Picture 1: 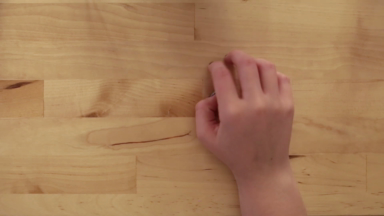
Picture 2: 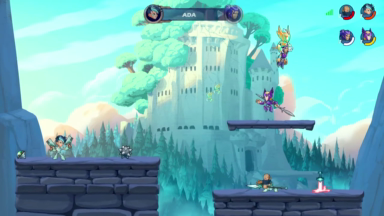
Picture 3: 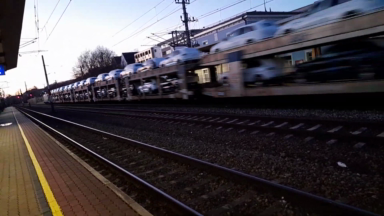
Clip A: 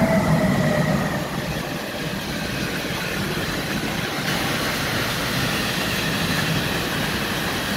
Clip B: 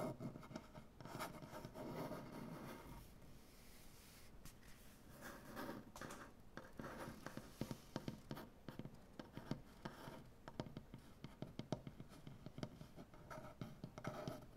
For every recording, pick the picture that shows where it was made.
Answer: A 3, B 1